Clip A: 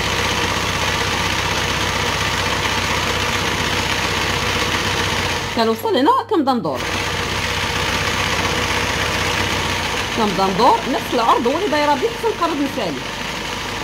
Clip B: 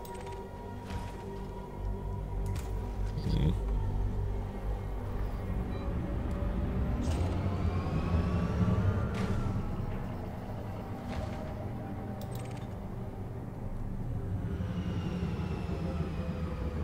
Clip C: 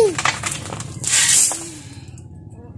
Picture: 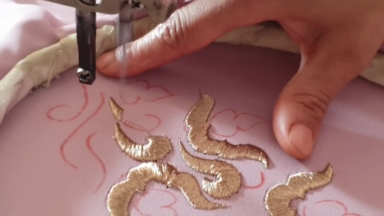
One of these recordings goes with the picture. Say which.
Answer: A